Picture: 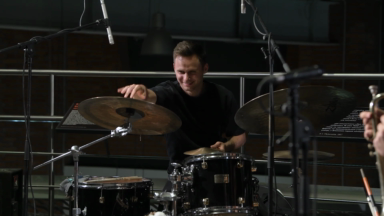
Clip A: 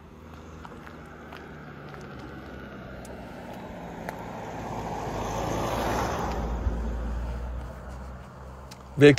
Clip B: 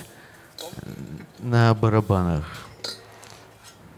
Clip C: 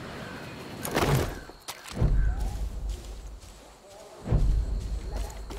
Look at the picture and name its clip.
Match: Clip B